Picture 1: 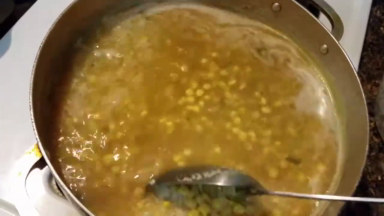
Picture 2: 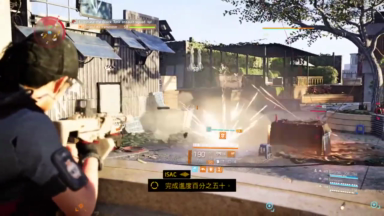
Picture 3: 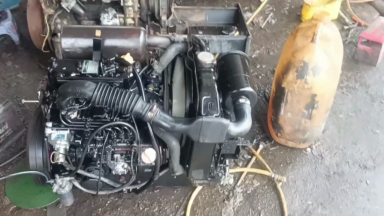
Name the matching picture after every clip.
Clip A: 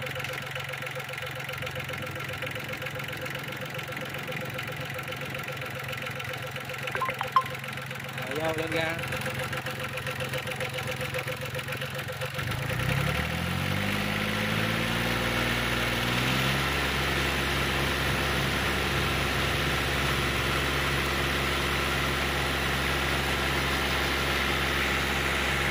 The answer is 3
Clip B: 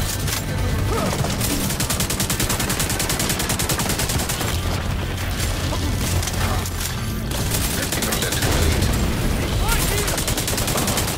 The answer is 2